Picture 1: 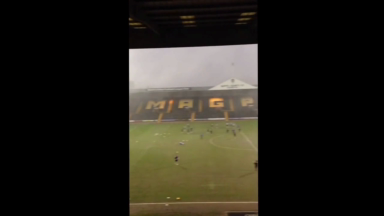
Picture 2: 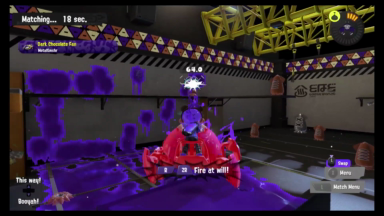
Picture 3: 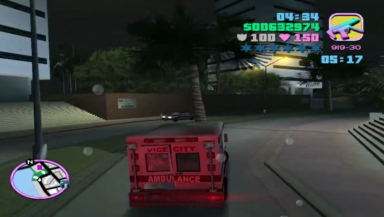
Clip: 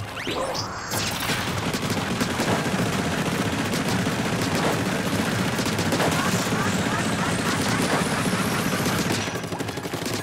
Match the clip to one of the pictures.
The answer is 2